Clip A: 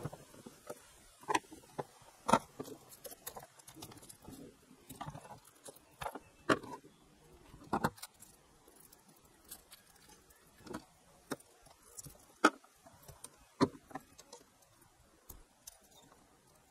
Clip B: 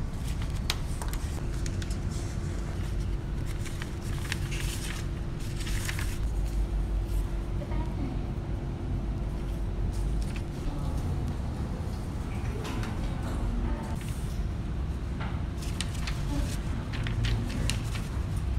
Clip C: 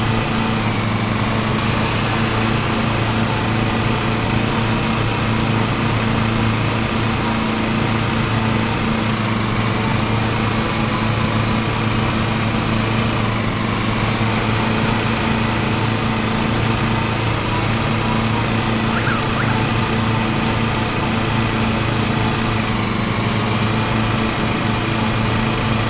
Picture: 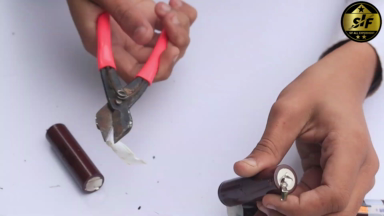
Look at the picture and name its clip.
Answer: A